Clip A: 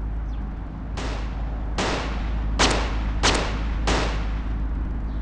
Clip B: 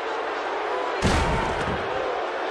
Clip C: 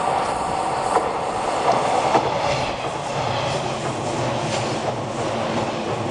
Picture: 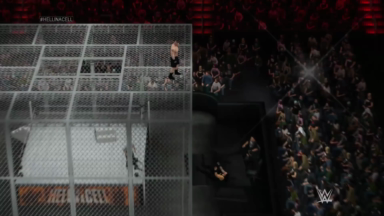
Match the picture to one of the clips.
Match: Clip B